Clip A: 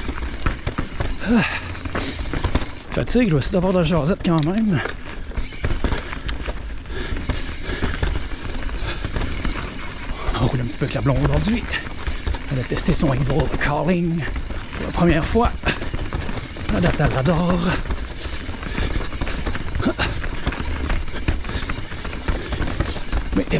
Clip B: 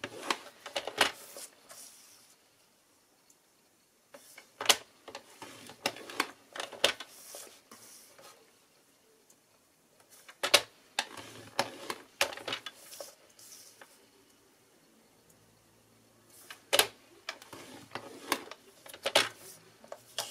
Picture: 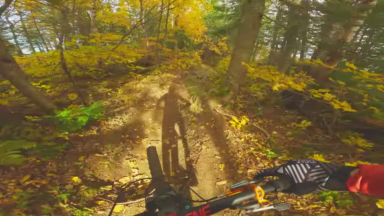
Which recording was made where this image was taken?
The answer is A